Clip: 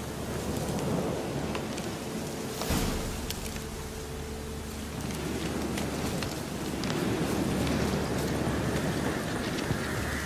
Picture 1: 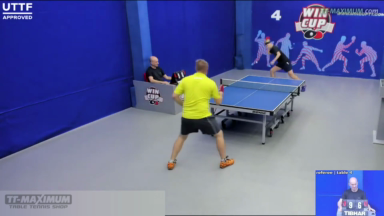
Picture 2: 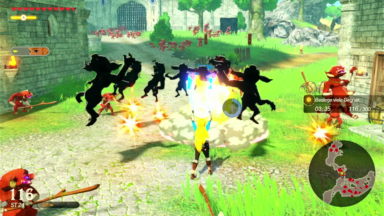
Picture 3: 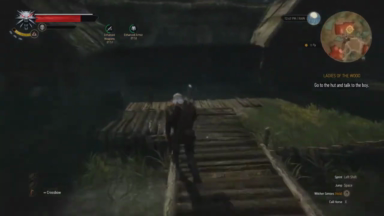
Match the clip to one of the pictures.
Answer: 3